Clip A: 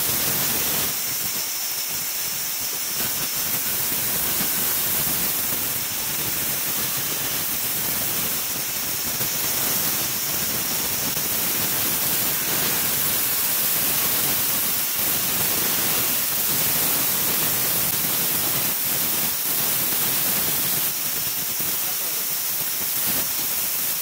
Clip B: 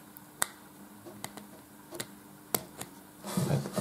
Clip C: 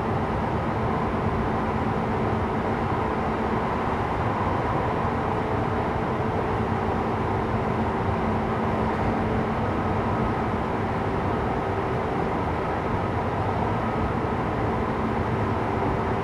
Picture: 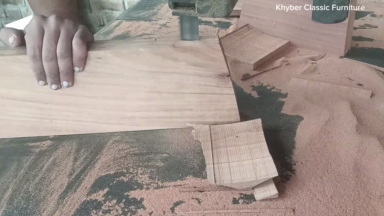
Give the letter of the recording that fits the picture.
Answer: A